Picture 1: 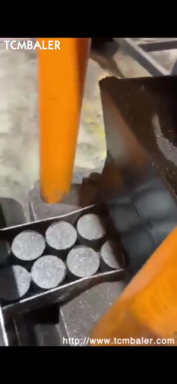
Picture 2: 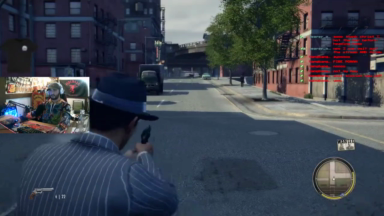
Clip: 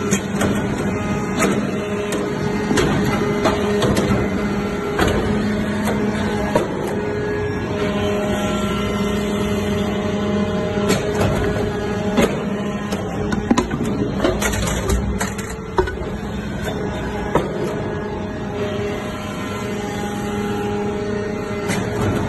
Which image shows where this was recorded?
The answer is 1